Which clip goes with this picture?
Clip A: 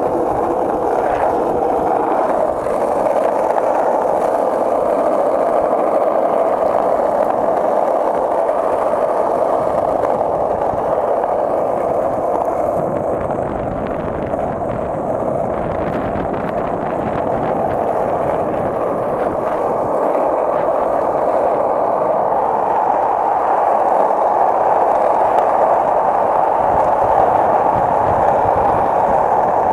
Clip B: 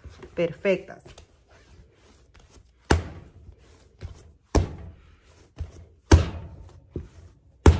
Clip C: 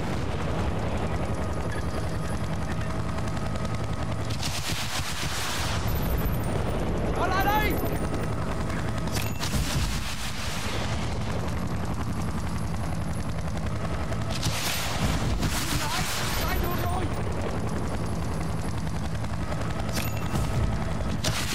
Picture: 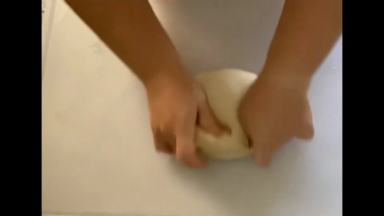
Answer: B